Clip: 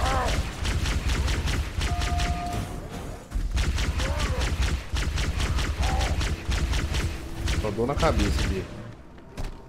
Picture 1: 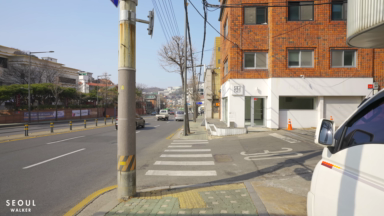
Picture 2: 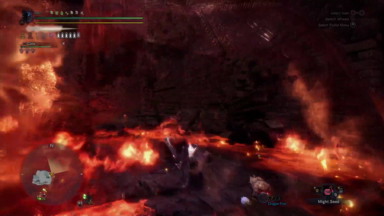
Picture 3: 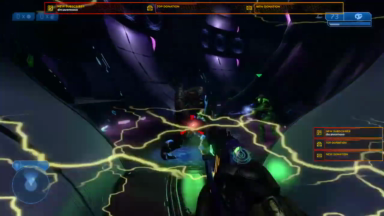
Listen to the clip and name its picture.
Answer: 3